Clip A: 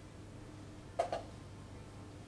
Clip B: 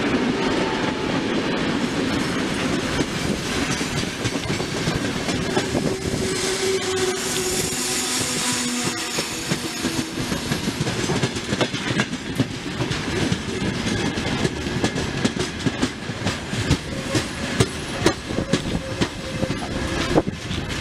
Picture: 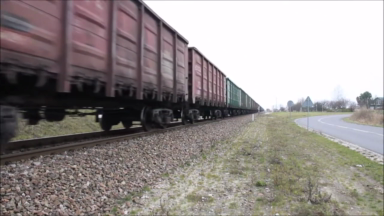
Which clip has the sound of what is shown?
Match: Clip B